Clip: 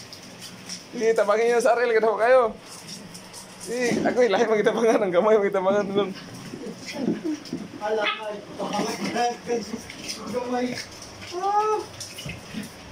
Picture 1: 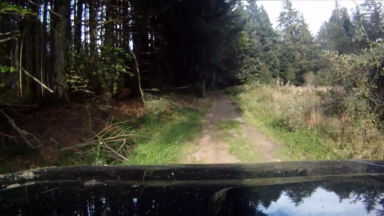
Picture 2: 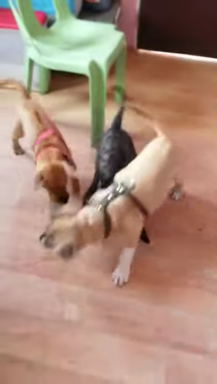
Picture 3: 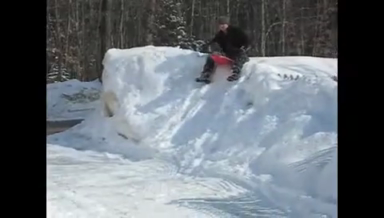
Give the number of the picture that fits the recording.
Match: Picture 2